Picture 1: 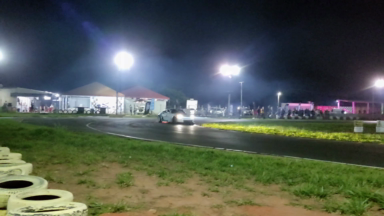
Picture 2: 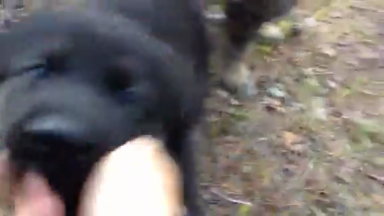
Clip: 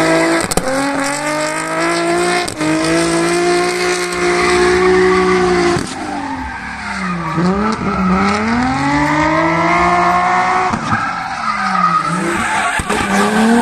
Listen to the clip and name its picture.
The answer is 1